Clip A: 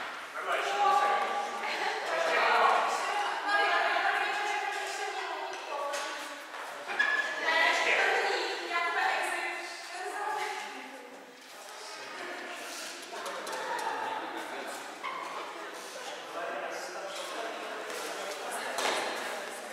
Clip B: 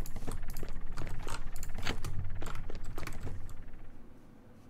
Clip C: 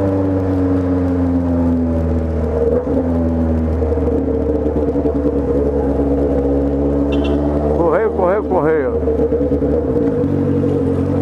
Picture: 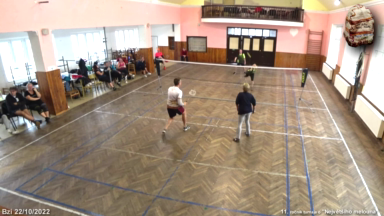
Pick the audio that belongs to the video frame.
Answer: A